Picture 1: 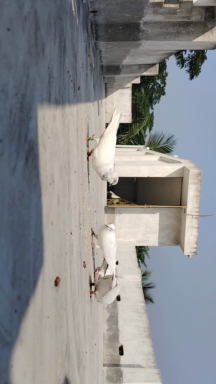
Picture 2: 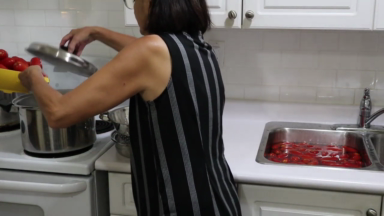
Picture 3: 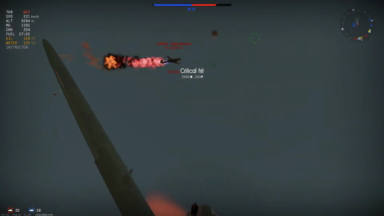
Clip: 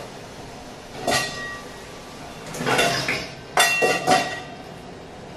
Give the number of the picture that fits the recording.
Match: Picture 2